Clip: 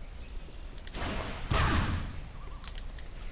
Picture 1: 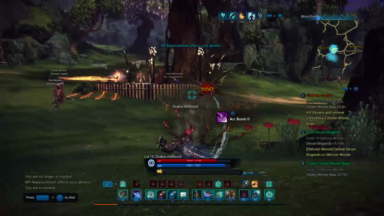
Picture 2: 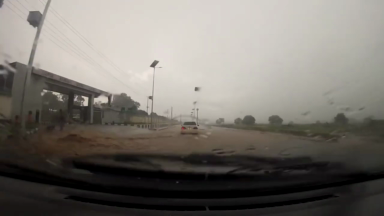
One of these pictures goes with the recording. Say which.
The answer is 1